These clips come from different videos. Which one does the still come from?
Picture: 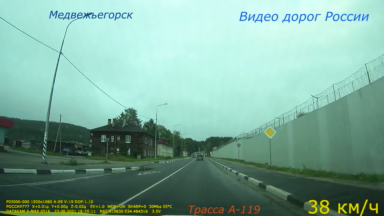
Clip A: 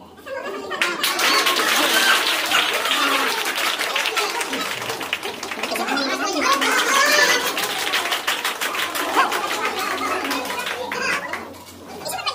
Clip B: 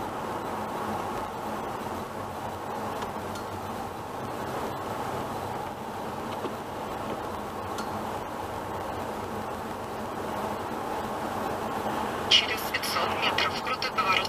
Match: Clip B